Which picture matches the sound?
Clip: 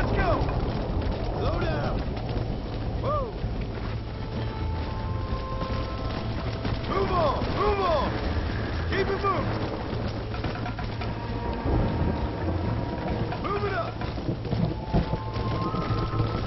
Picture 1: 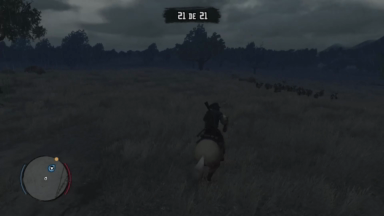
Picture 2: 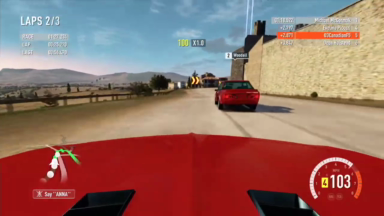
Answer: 1